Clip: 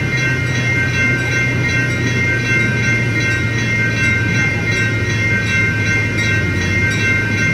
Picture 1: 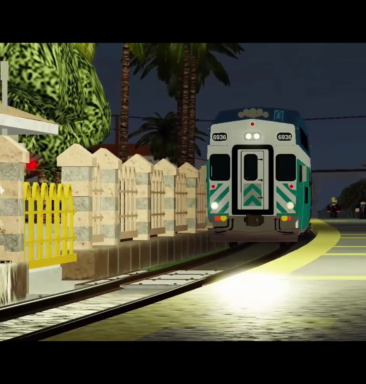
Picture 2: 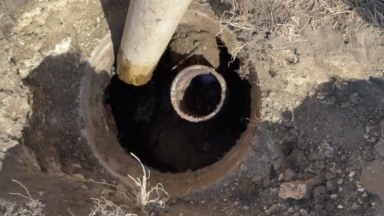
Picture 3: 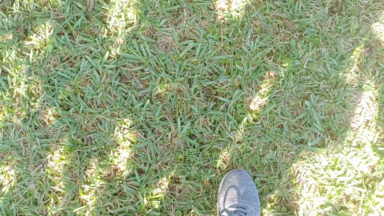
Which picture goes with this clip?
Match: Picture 1